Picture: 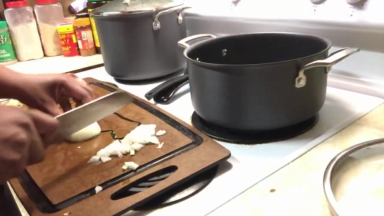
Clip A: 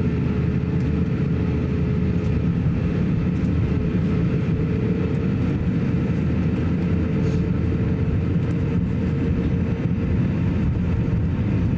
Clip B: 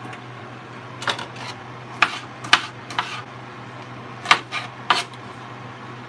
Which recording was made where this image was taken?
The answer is B